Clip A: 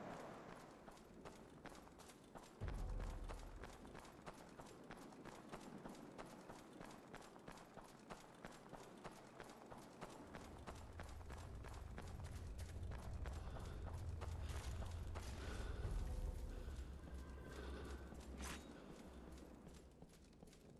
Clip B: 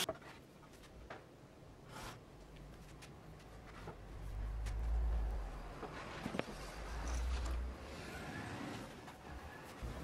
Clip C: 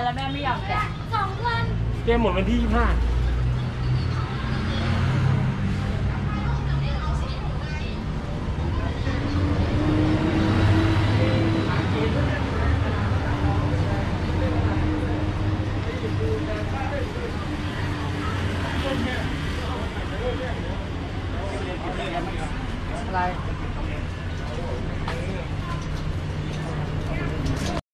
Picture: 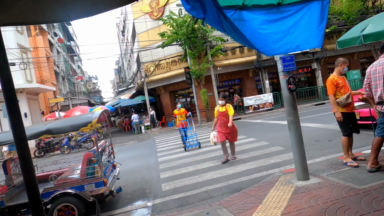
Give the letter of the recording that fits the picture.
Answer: C